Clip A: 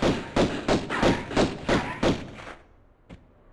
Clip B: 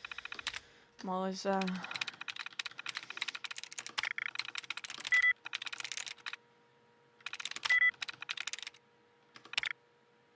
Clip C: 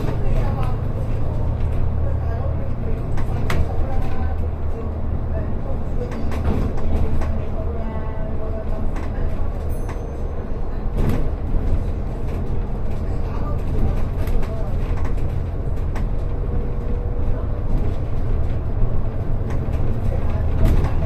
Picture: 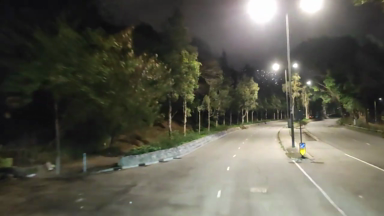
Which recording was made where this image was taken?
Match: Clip C